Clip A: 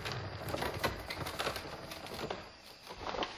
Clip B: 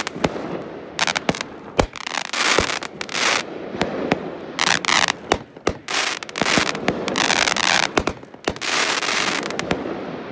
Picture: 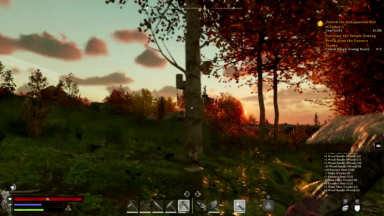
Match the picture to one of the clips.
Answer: A